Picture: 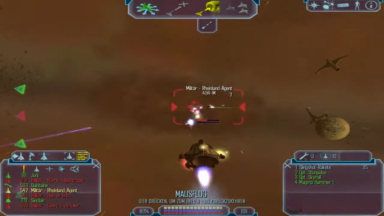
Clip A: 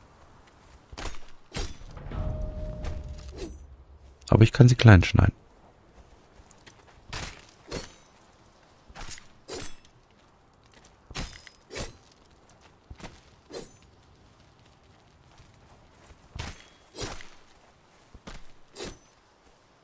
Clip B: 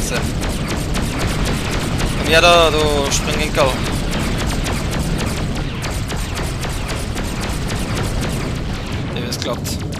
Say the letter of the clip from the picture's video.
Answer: B